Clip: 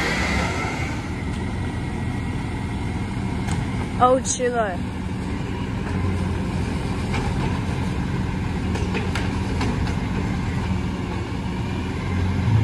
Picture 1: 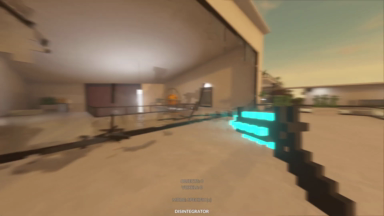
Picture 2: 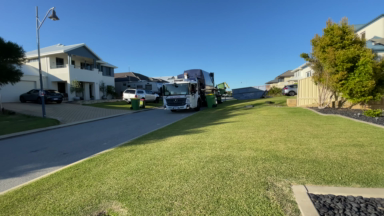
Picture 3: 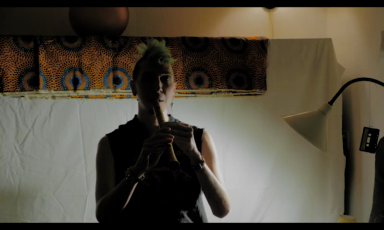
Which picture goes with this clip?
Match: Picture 2